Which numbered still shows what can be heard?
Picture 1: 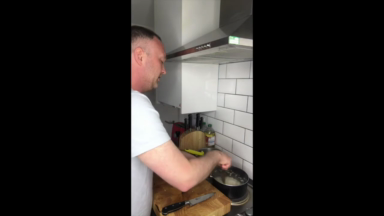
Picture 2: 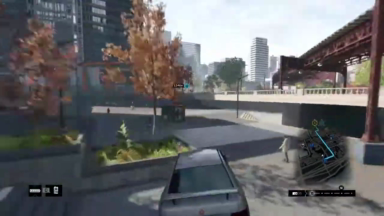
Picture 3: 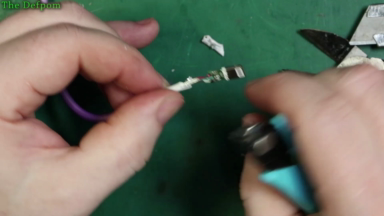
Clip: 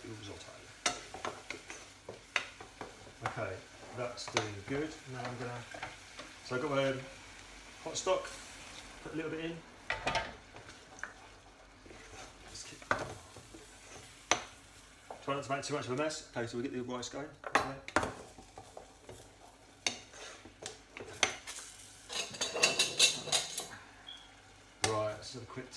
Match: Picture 1